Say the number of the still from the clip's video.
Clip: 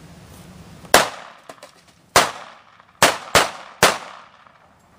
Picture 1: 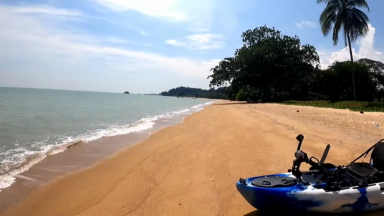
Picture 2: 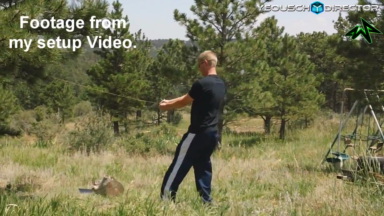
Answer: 2